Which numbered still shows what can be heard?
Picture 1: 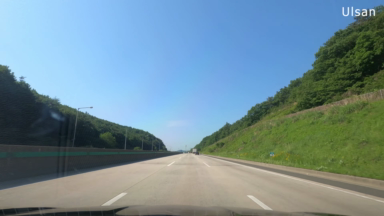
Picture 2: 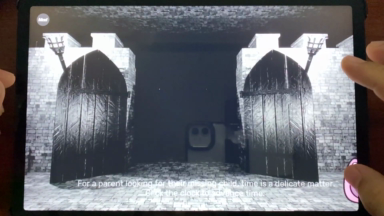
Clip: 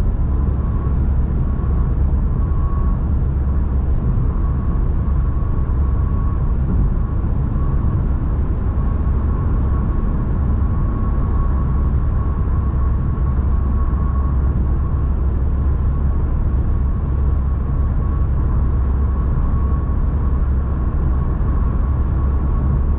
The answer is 1